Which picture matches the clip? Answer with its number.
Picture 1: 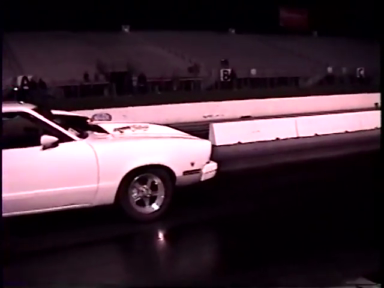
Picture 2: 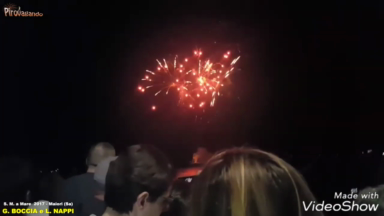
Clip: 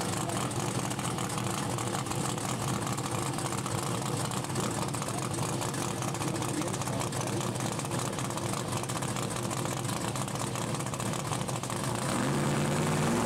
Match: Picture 1